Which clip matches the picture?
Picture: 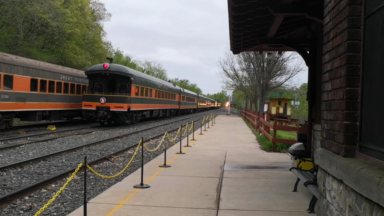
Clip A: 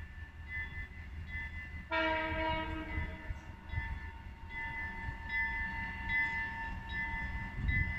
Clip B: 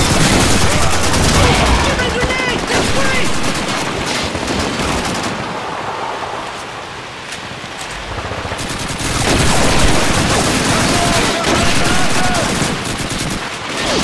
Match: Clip A